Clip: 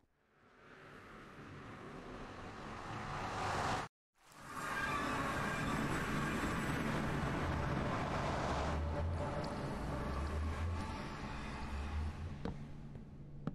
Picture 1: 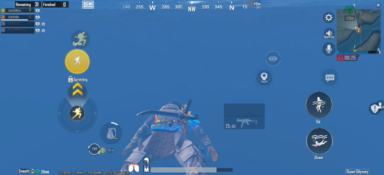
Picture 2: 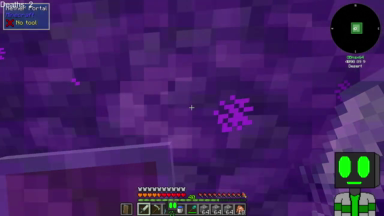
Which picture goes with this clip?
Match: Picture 2